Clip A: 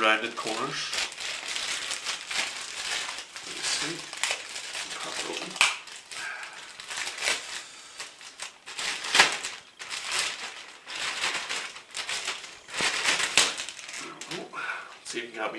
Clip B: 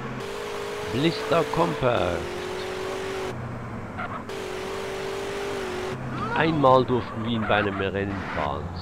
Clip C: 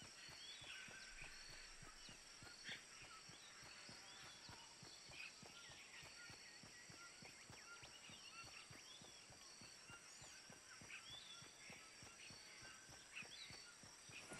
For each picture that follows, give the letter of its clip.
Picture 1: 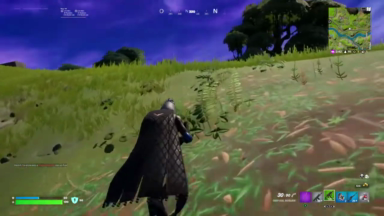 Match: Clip C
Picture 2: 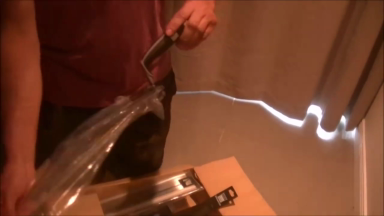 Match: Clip A